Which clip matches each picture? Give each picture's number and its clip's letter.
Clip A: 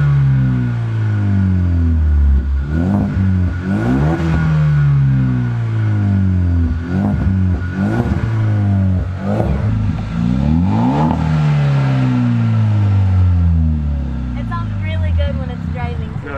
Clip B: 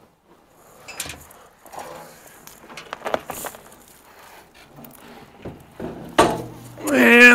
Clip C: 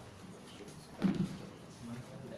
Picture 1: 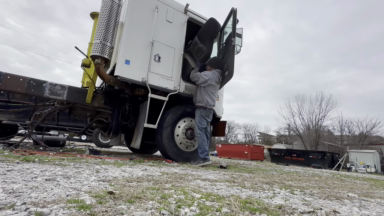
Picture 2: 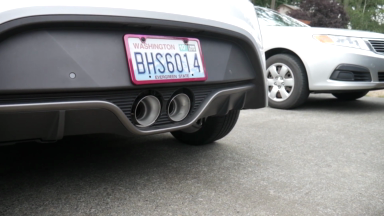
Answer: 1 B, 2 A